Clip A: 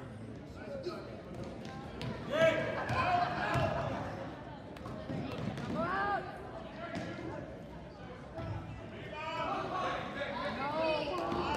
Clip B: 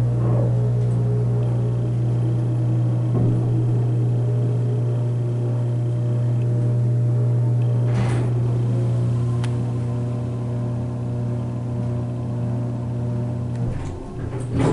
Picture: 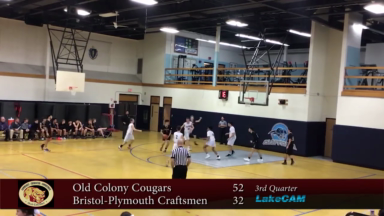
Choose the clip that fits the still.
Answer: A